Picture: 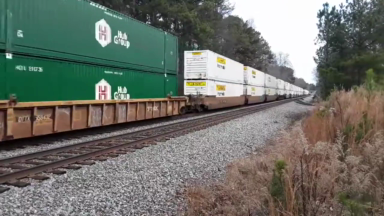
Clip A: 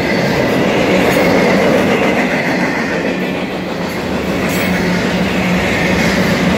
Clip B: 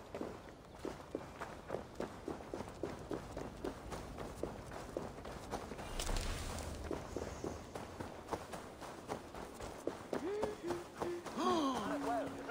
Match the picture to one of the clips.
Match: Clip A